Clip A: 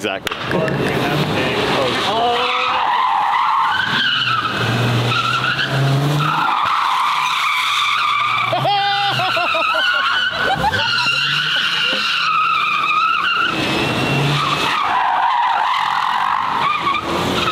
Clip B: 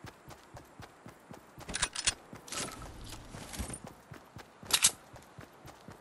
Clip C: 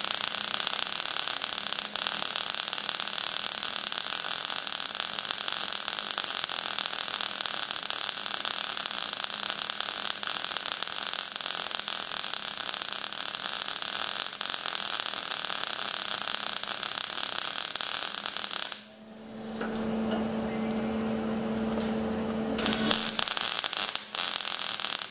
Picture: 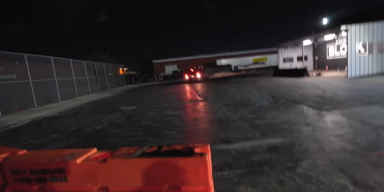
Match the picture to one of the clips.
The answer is A